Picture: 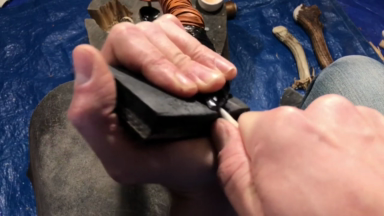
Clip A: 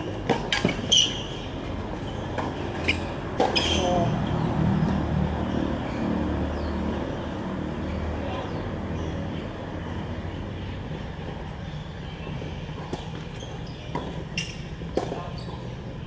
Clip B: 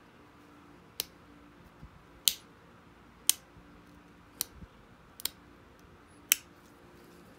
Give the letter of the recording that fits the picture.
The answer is B